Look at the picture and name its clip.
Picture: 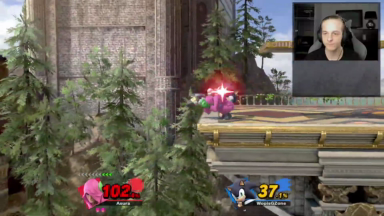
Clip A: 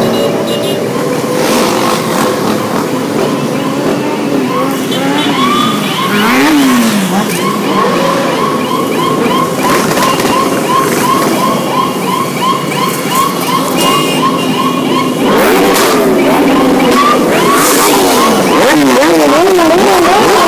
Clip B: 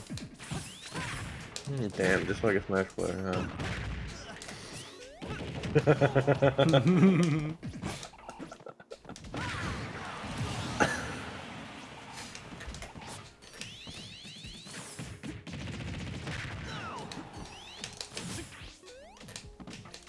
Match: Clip B